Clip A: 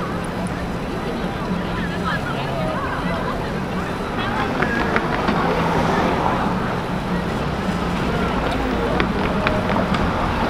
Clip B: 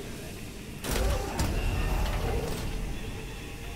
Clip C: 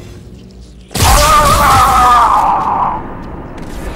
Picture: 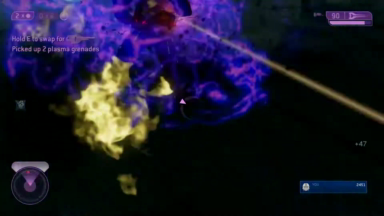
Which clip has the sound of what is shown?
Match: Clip C